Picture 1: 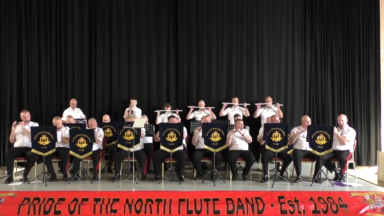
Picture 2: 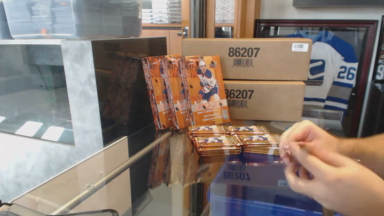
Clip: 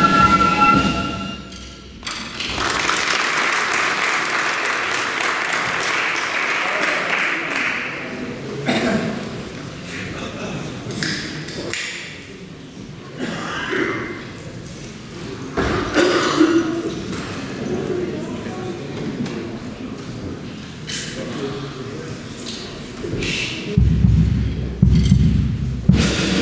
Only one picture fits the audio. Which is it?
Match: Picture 1